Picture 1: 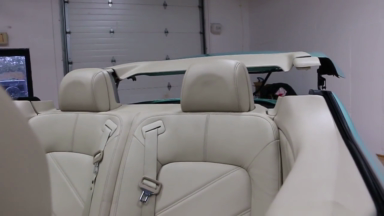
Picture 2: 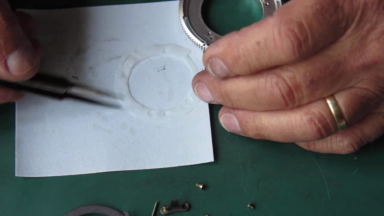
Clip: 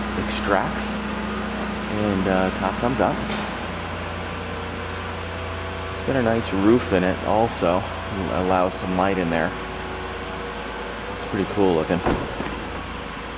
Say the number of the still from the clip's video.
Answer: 1